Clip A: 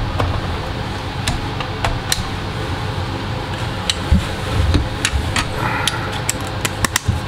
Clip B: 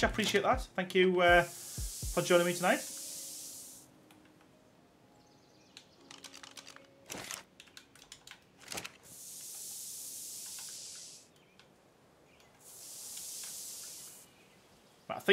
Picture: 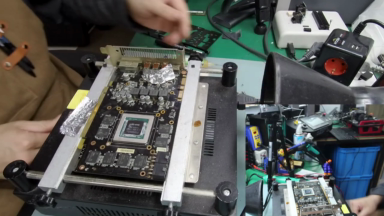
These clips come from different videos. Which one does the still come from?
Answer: A